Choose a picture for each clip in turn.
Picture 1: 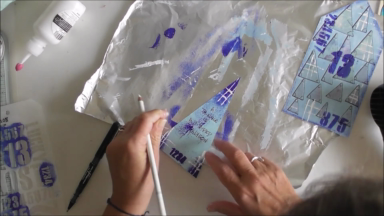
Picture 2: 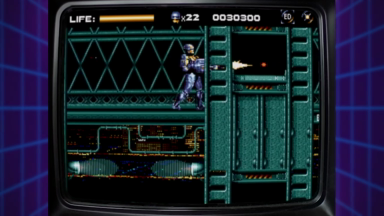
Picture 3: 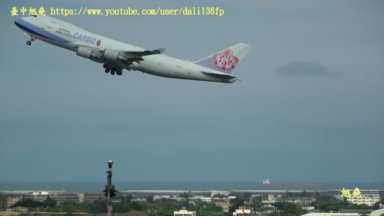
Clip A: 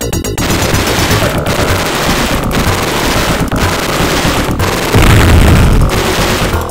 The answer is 2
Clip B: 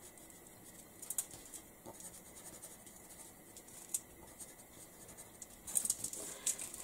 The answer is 1